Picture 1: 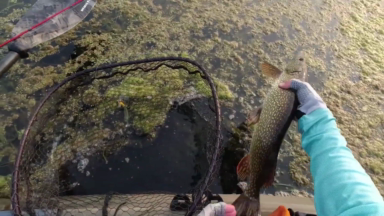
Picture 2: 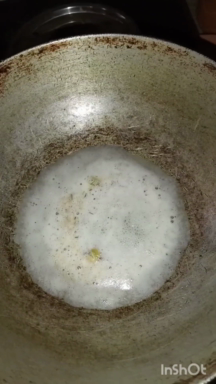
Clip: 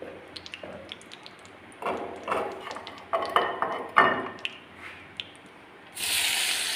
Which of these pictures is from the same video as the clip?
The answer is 2